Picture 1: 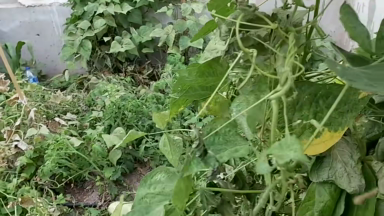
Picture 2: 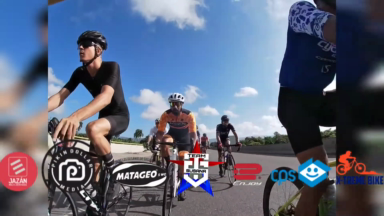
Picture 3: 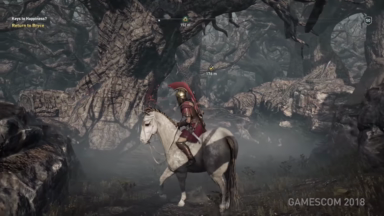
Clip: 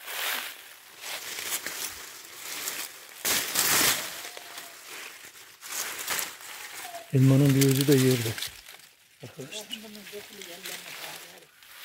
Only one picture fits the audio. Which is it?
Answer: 1